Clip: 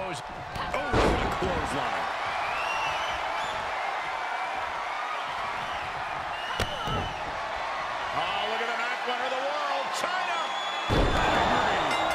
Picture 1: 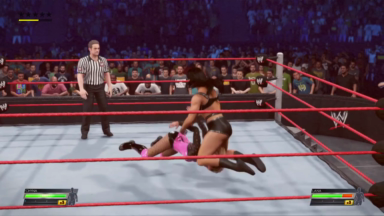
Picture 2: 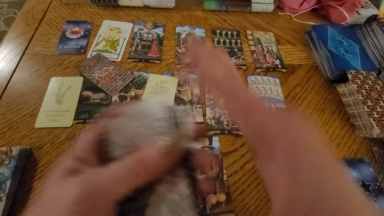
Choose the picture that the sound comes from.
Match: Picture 1